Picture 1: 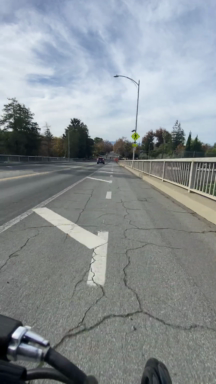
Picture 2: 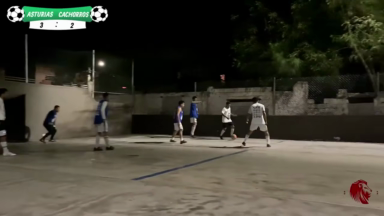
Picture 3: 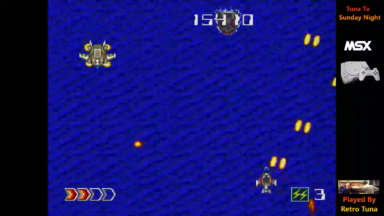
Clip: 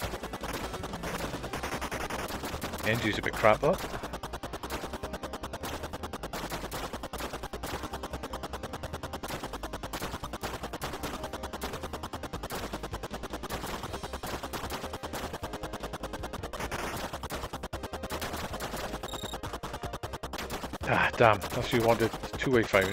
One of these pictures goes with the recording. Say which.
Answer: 3